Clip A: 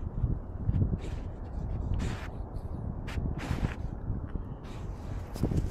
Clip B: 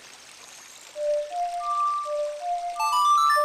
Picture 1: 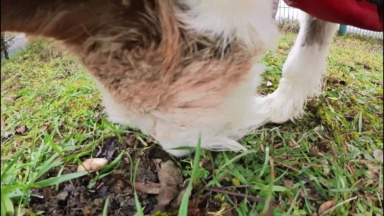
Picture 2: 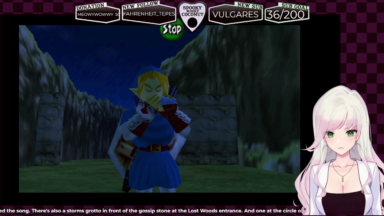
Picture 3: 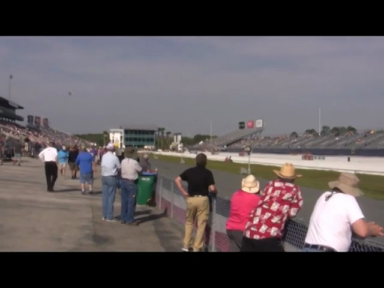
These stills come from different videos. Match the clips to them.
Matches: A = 1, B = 2